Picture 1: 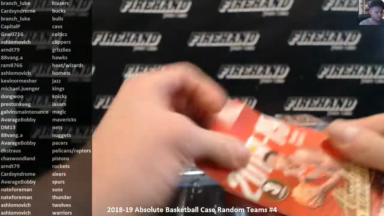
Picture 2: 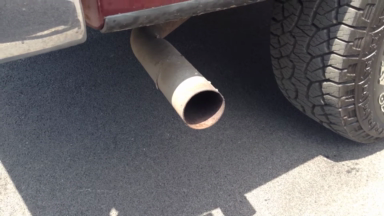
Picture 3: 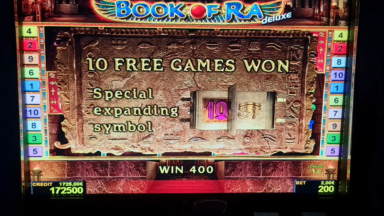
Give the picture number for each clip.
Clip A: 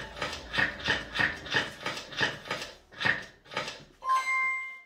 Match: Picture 3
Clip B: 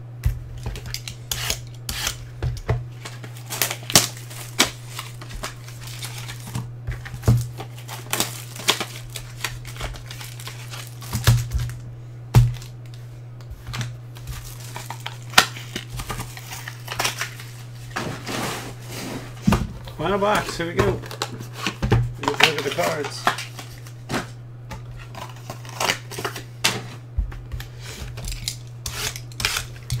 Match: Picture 1